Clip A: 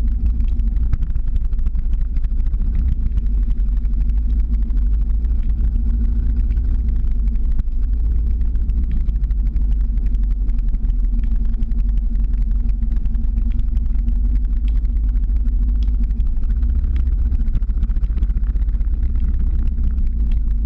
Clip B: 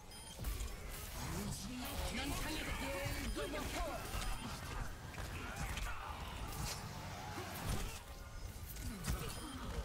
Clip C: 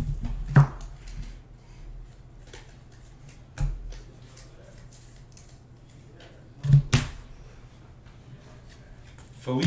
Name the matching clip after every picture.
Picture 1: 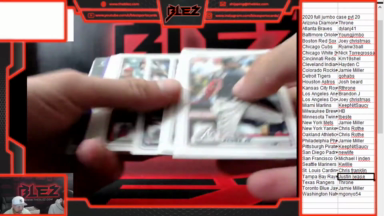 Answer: C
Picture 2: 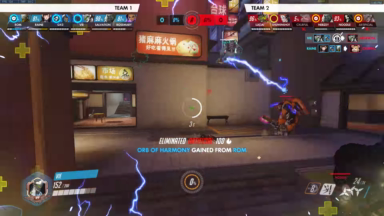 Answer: B